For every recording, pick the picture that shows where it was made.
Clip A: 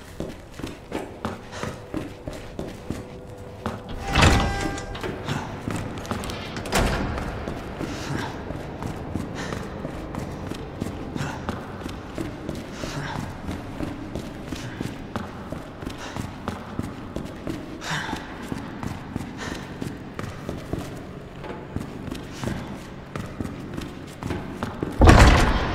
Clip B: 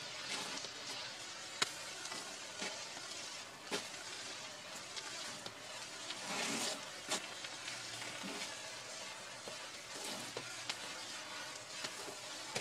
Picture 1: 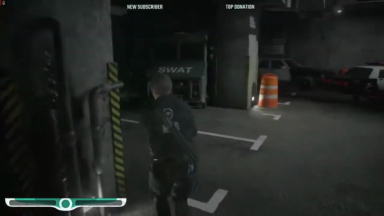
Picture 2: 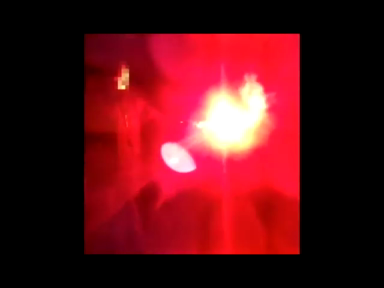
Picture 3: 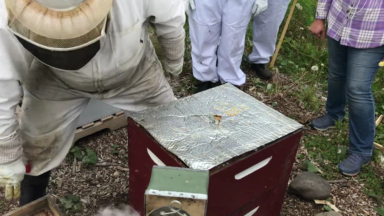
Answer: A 1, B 2